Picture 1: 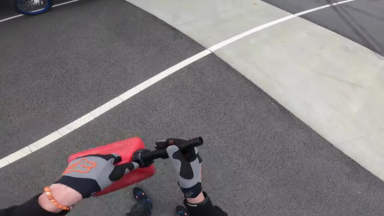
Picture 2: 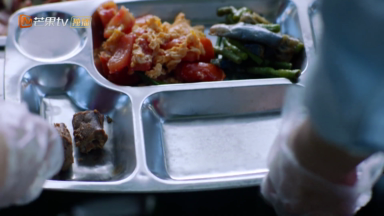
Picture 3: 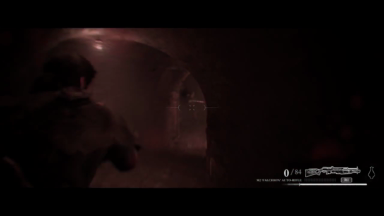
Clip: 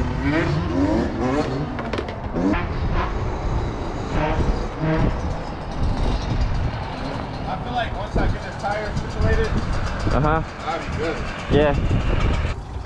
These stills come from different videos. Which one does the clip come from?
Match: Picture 1